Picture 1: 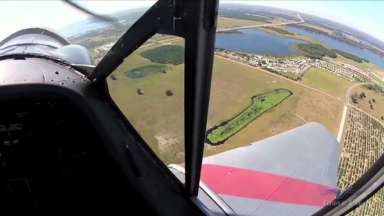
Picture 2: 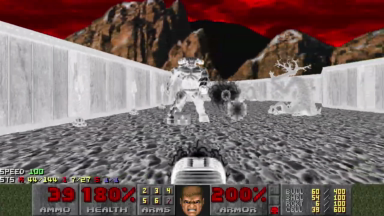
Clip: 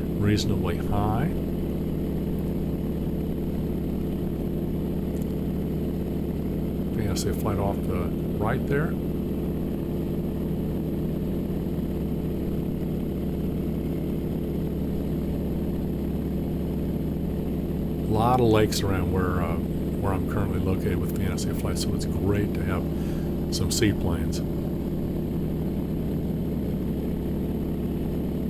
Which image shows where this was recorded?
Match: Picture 1